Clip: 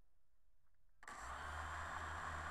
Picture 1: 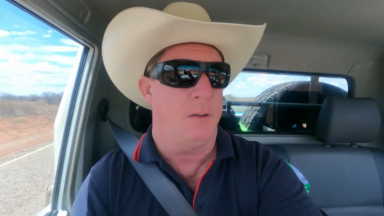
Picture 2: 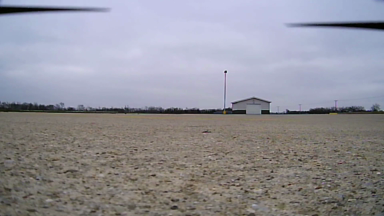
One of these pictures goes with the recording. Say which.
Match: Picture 2